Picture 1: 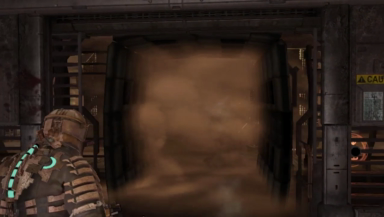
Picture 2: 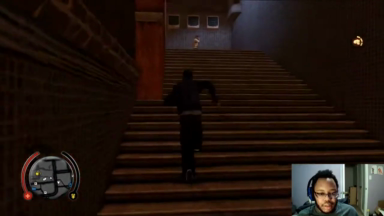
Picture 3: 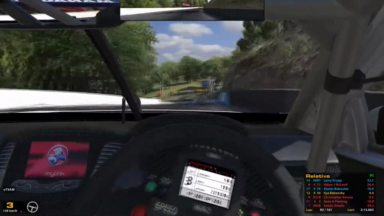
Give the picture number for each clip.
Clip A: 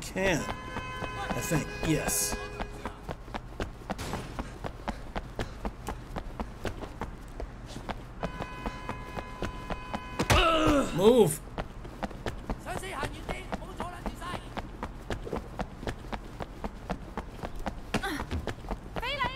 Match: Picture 2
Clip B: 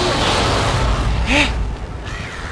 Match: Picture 1